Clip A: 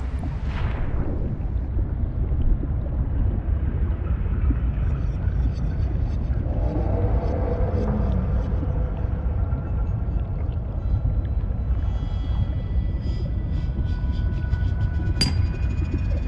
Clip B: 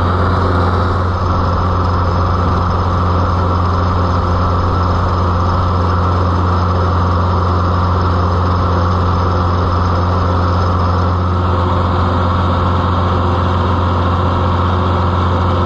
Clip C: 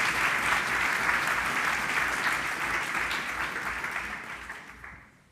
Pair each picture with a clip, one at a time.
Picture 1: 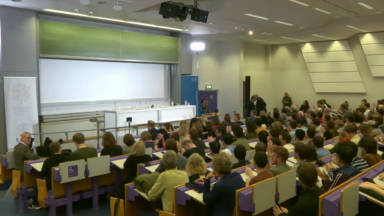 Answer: C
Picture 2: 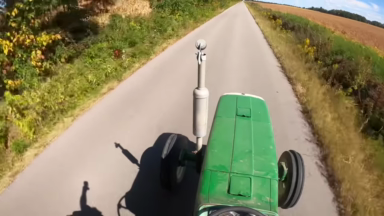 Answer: B